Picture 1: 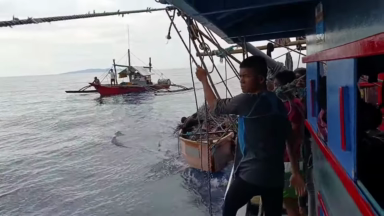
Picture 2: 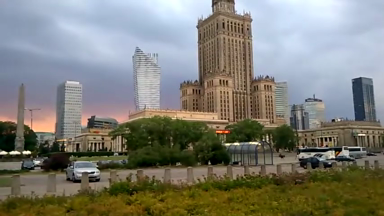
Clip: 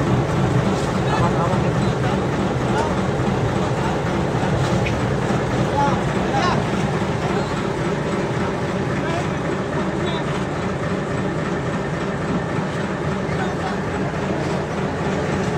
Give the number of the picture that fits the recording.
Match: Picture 1